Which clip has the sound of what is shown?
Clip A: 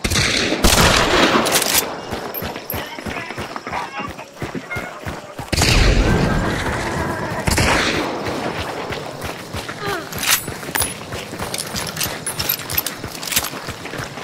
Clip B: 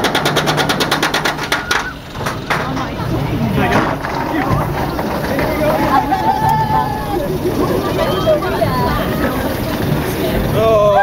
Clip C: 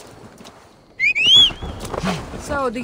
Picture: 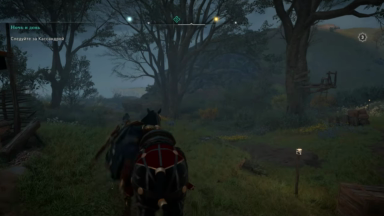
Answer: C